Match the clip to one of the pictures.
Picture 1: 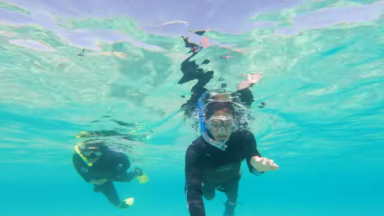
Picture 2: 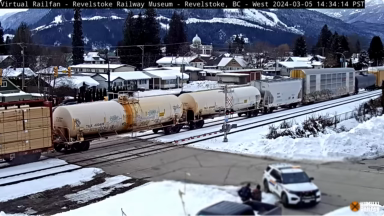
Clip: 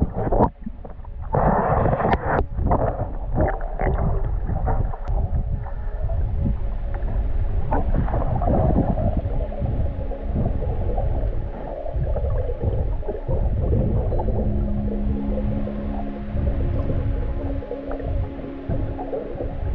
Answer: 1